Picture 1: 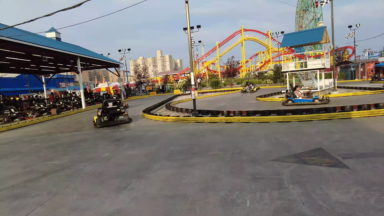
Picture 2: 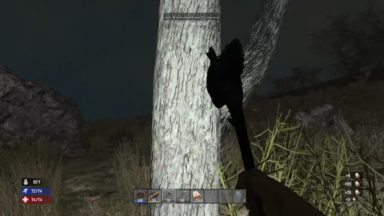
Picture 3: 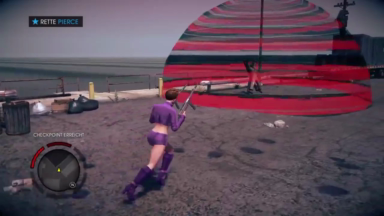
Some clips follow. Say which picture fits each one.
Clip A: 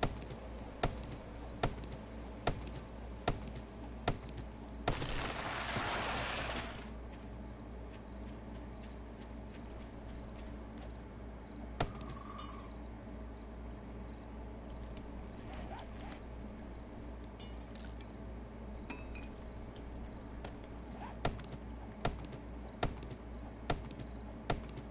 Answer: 2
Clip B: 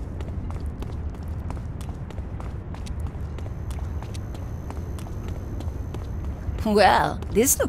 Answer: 3